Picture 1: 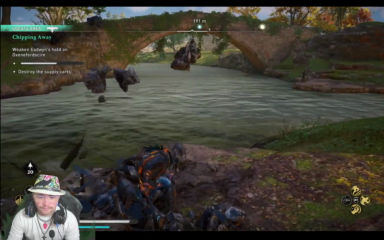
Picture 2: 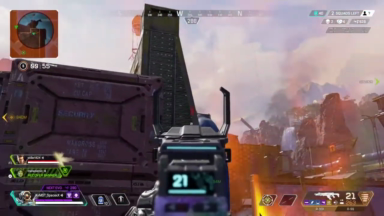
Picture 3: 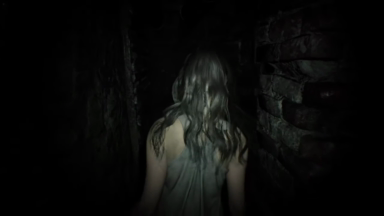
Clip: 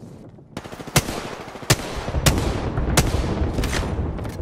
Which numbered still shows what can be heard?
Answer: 2